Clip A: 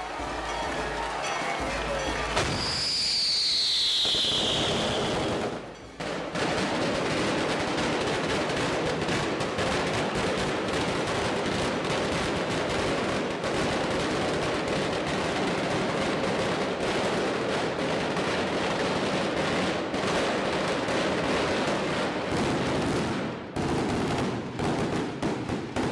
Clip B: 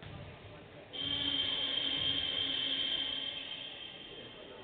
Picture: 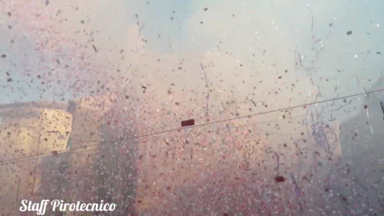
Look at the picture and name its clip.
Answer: A